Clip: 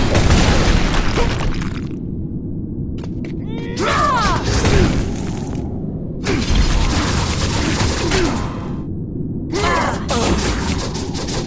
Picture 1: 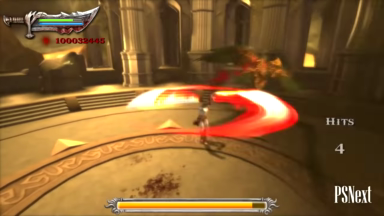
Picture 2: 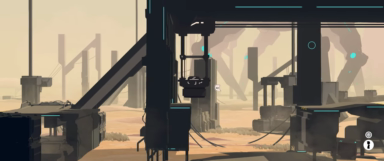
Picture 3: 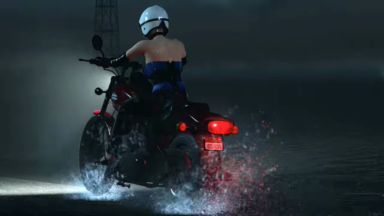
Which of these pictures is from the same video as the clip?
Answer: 1